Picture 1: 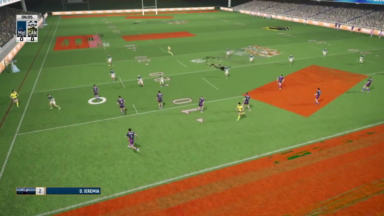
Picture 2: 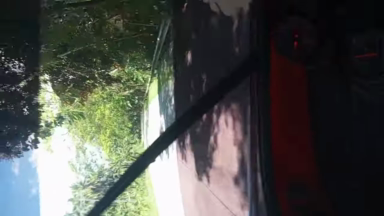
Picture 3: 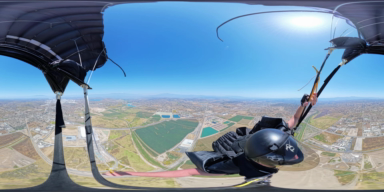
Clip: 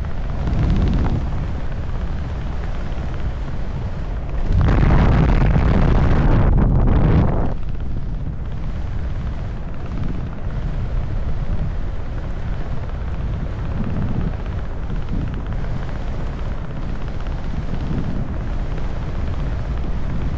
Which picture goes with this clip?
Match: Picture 3